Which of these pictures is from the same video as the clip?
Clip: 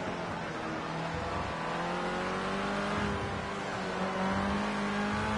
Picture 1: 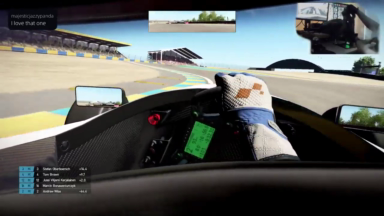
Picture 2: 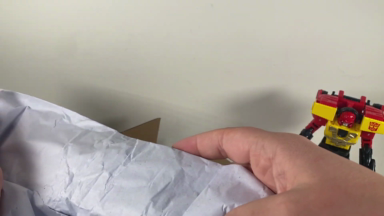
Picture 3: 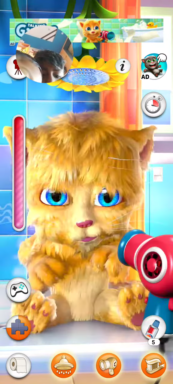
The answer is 1